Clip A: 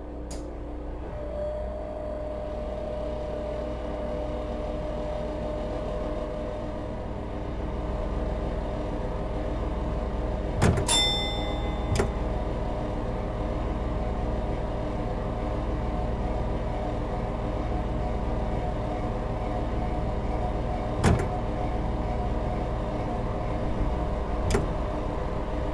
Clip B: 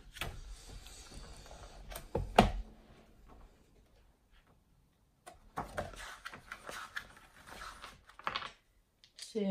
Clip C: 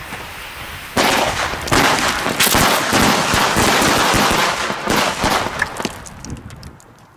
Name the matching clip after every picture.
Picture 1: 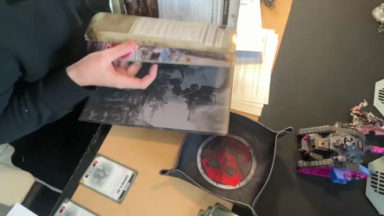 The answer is B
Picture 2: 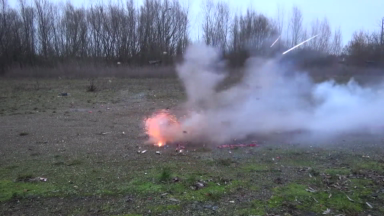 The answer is C